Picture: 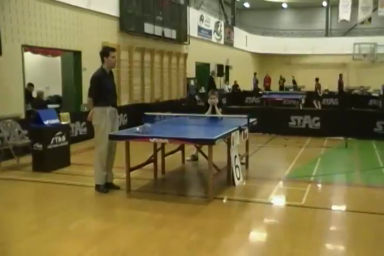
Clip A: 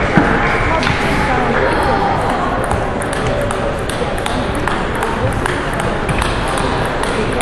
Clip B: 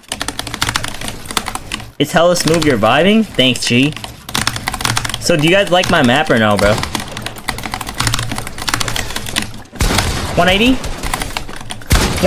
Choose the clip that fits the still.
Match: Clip A